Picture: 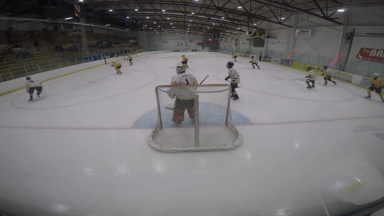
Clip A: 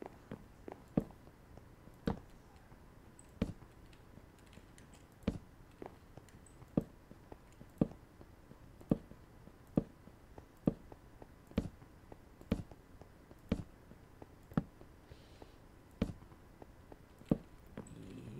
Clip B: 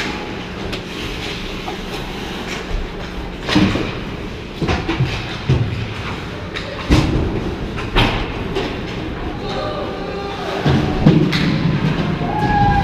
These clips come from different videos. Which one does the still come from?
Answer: B